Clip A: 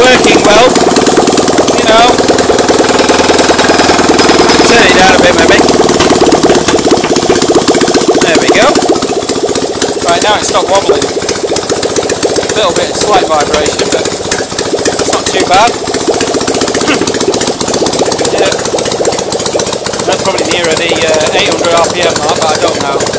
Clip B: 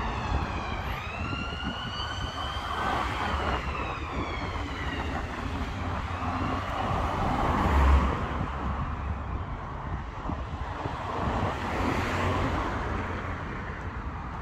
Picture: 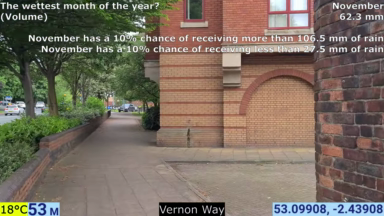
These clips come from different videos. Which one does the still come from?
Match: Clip B